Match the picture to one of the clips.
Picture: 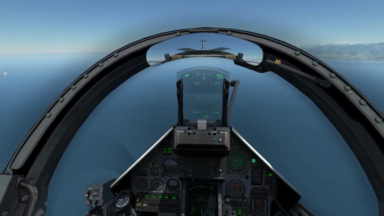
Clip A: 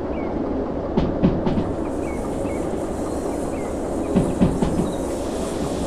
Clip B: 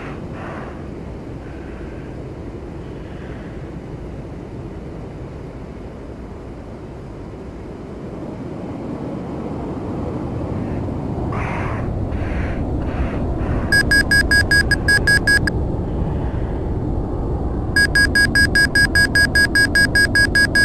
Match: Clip B